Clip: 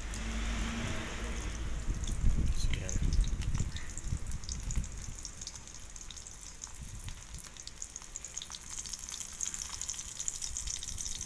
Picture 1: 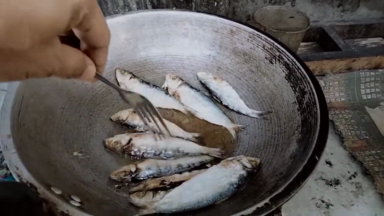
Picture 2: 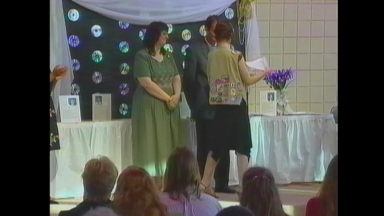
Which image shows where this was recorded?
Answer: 1